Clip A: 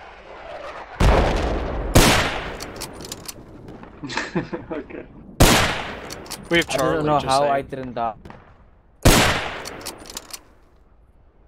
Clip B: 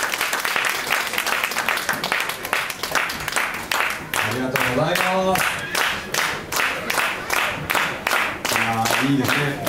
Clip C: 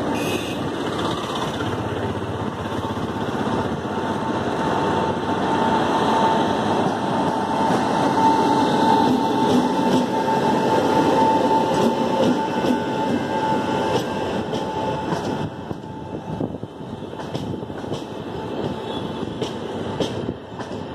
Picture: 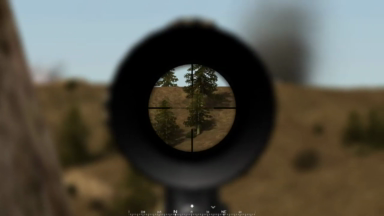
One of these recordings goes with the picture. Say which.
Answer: A